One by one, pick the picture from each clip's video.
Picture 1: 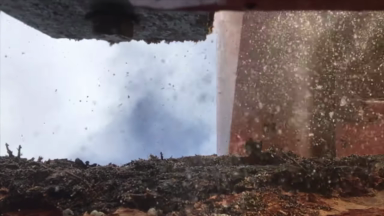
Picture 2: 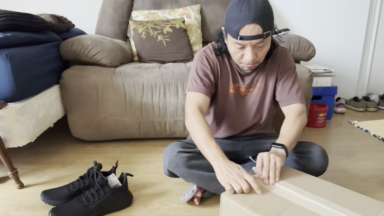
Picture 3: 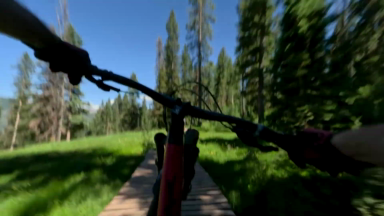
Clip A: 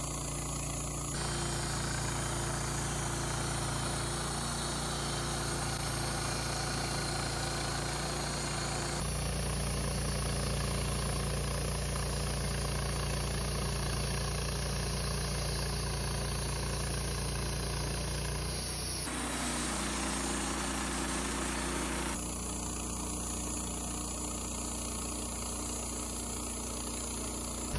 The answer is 1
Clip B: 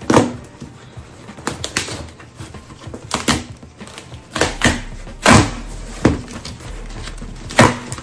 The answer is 2